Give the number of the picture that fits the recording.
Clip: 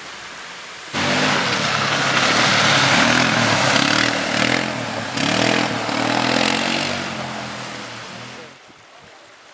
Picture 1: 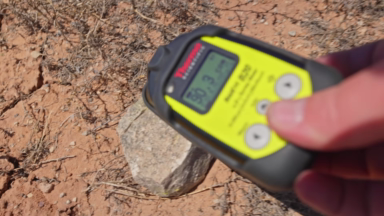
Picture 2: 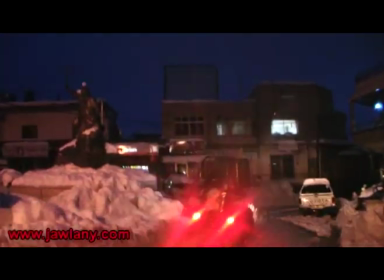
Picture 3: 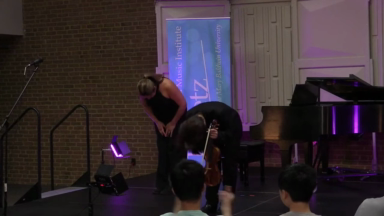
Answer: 2